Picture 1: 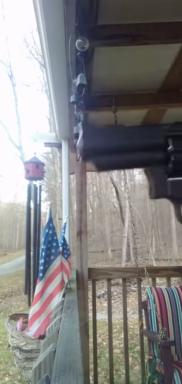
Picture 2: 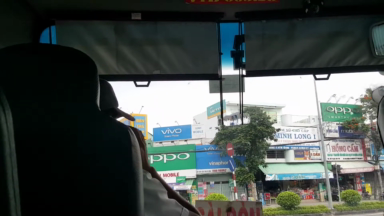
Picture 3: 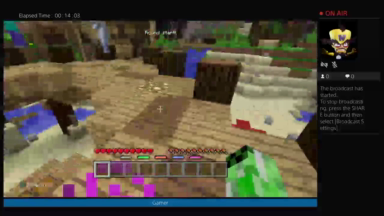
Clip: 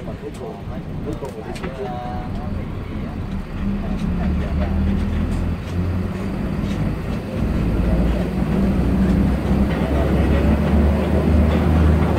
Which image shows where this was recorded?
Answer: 2